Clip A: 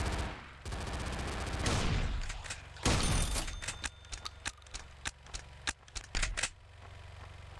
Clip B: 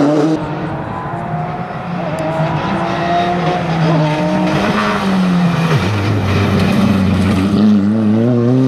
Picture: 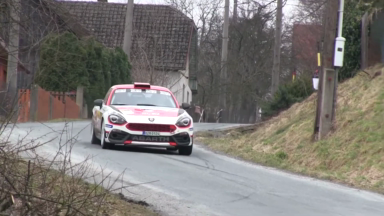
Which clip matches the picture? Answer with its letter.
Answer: B